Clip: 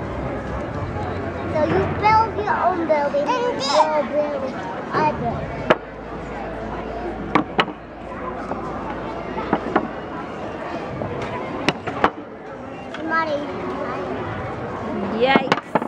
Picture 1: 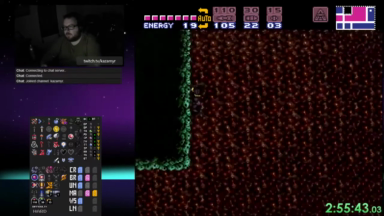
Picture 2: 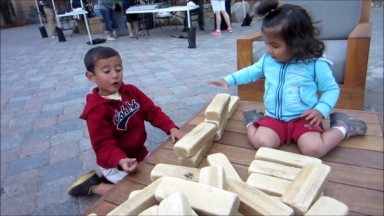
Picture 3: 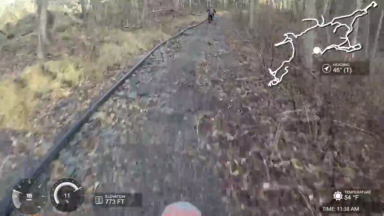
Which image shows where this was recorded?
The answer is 2